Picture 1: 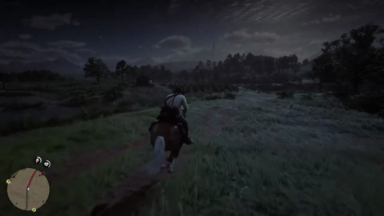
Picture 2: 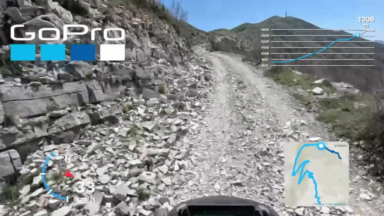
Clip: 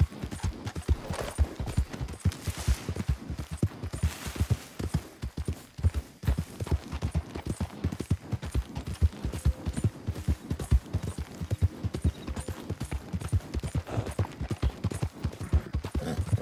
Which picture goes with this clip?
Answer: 1